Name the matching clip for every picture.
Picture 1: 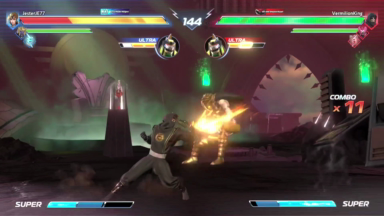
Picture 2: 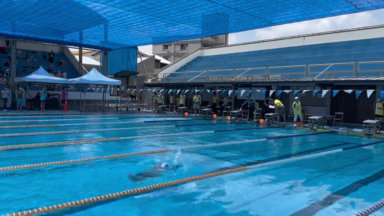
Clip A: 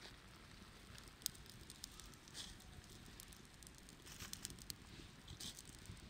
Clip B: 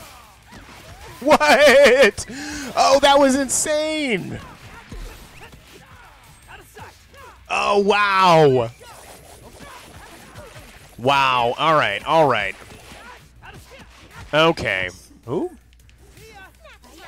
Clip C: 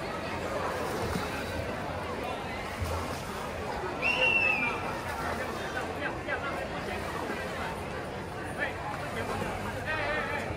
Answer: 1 B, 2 C